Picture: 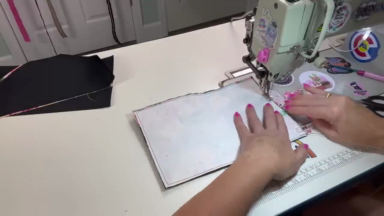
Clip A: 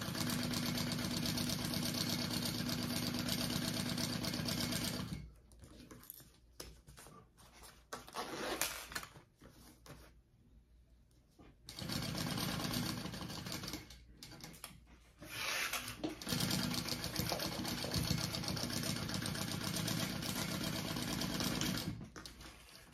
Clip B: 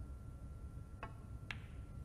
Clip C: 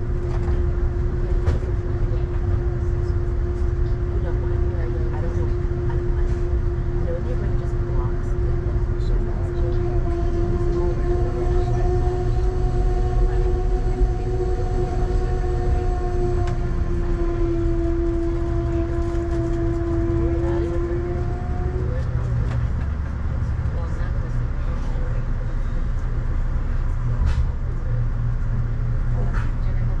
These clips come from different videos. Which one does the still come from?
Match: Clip A